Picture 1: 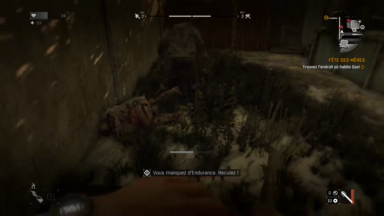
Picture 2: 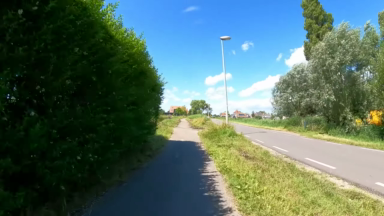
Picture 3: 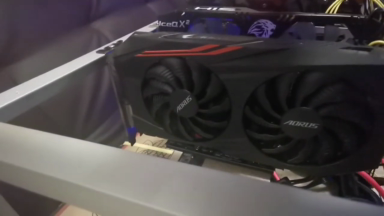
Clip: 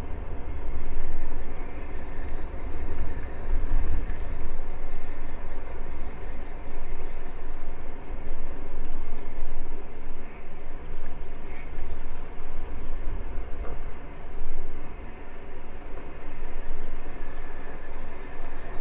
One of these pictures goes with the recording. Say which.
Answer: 2